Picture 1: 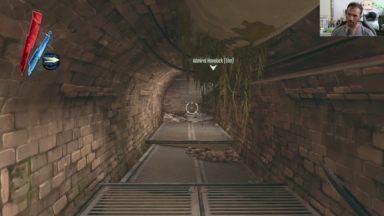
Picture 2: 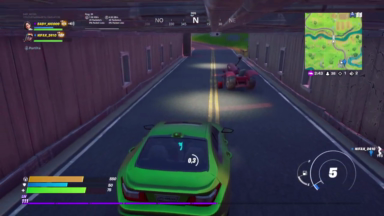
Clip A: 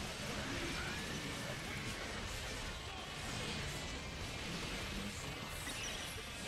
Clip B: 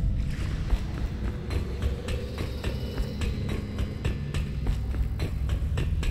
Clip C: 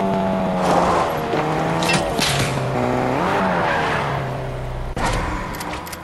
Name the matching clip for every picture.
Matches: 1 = B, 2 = C